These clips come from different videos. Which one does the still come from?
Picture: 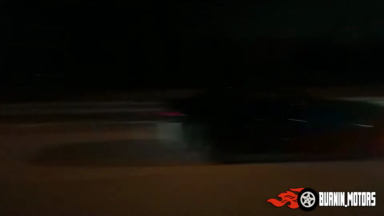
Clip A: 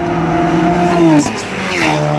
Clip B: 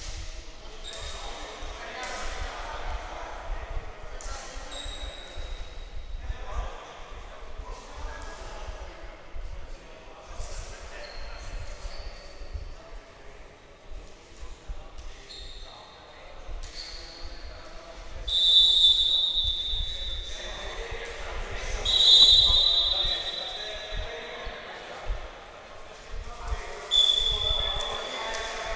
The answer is A